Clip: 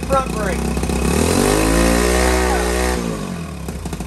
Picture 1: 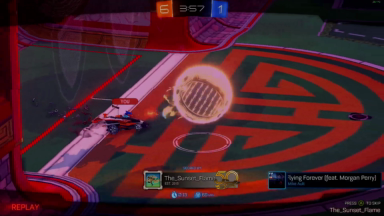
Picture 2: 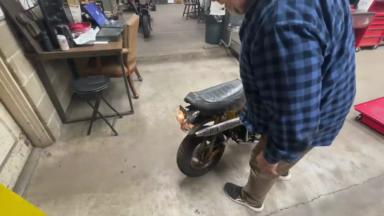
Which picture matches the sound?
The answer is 2